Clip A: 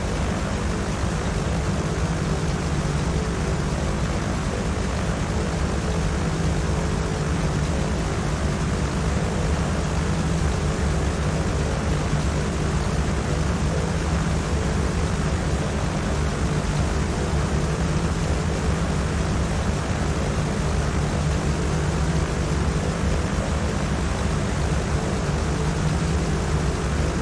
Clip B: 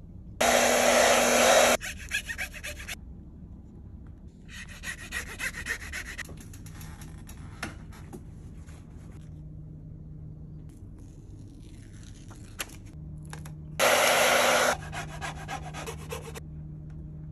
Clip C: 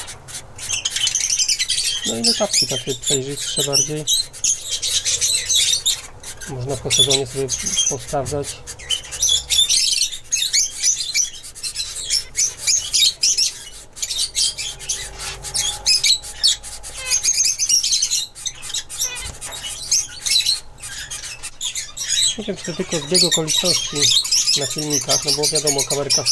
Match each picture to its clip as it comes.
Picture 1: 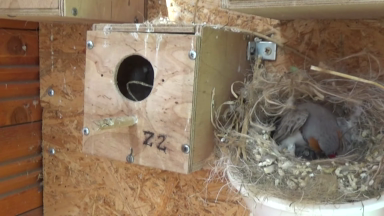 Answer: C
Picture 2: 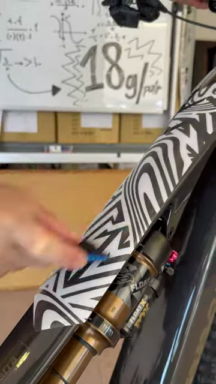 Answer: B